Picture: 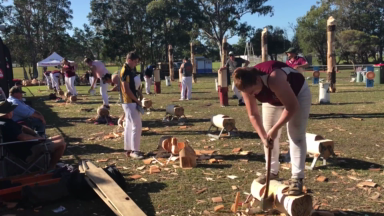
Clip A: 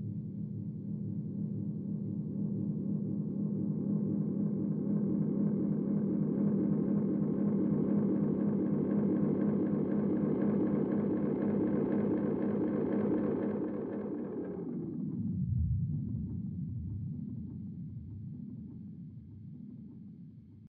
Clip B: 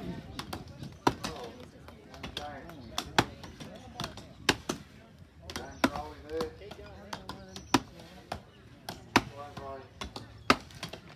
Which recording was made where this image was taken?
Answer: B